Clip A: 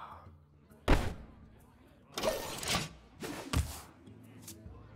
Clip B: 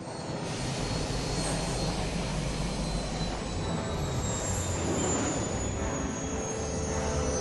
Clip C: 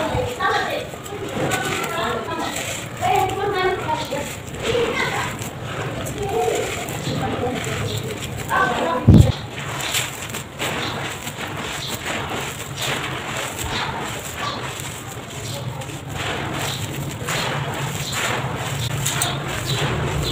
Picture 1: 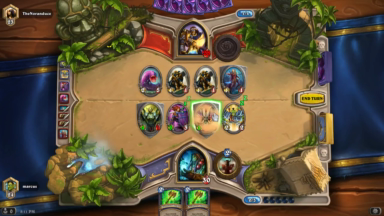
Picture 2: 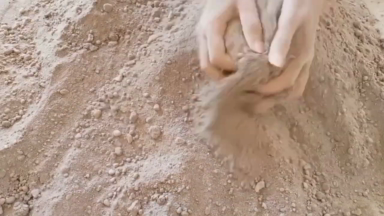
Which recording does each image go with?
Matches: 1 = A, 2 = C